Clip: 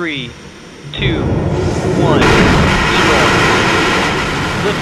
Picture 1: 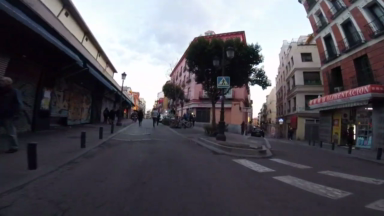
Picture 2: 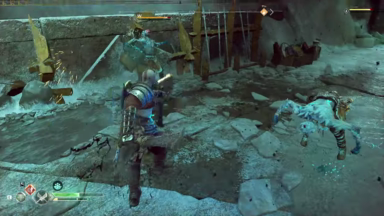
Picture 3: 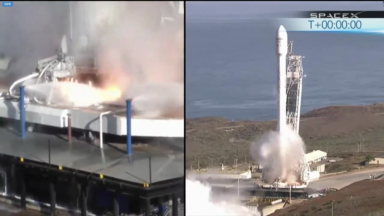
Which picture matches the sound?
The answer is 3